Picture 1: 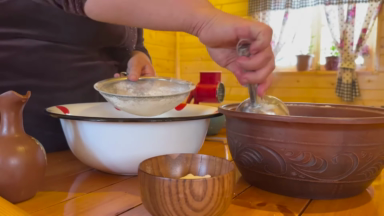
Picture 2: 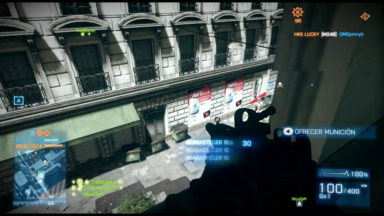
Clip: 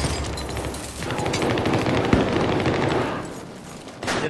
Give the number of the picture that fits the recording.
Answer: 2